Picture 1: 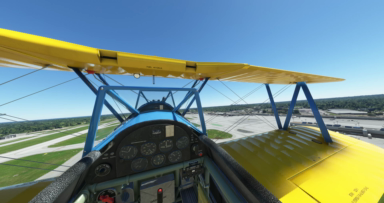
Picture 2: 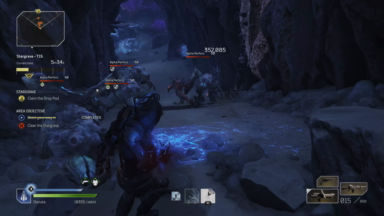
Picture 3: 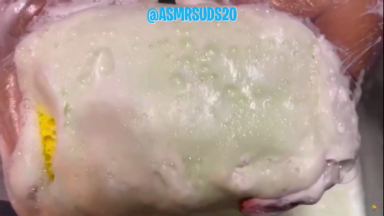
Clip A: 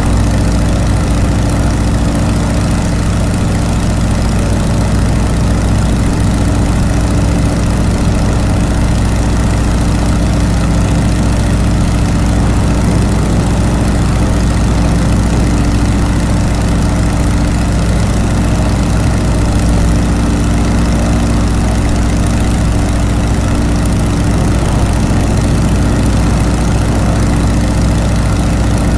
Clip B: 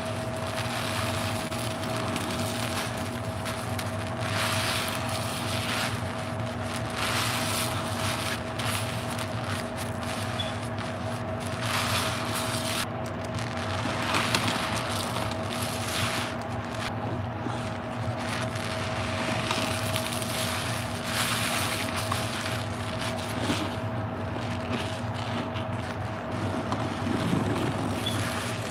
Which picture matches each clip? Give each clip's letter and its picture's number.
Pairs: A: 1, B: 3